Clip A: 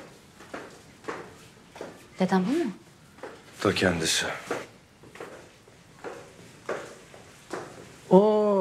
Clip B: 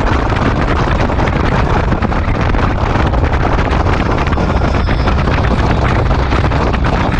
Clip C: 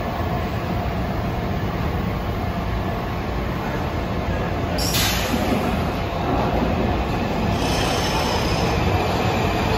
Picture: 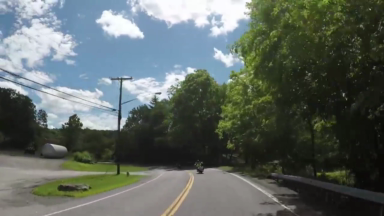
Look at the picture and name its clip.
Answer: B